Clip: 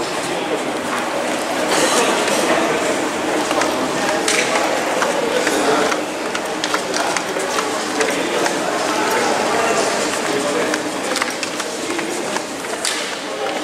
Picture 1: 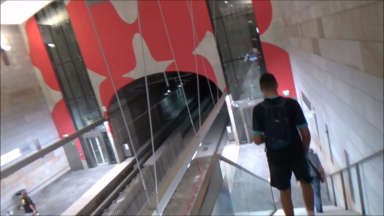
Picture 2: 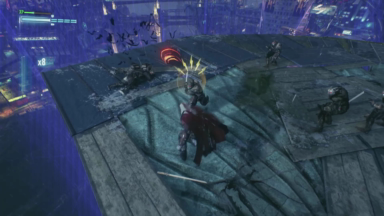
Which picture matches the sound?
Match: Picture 1